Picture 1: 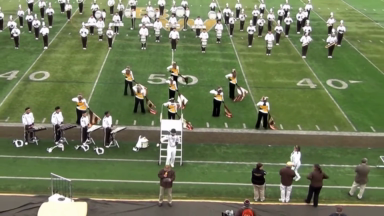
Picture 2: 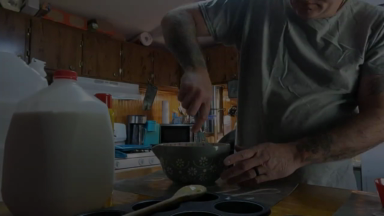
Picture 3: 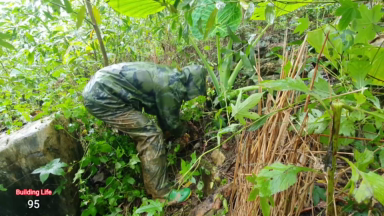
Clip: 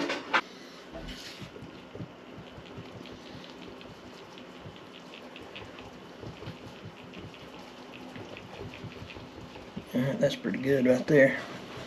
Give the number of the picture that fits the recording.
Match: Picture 2